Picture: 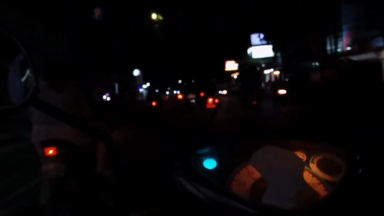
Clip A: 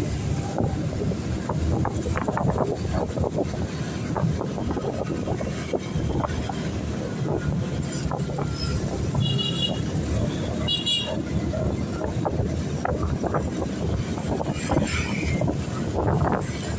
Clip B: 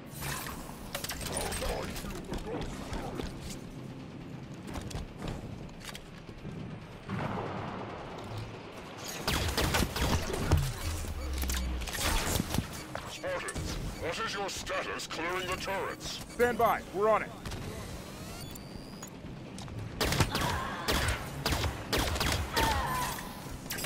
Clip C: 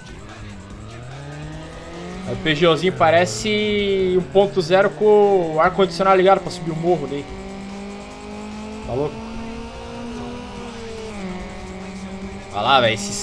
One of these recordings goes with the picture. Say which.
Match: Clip A